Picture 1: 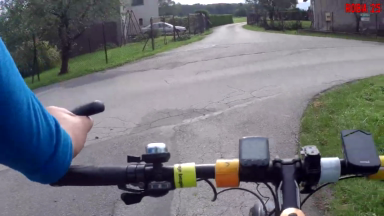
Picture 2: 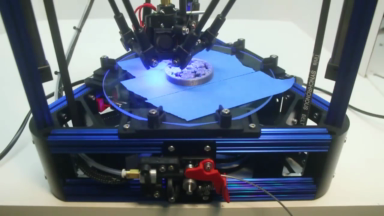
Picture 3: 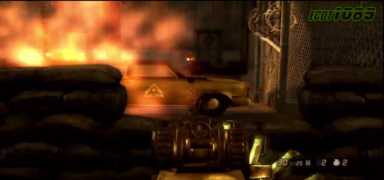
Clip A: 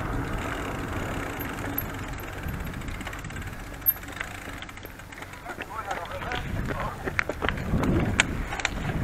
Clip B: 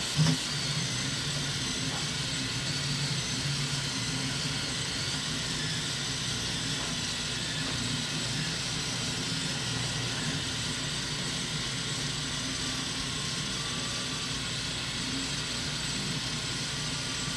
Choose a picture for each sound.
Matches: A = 1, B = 2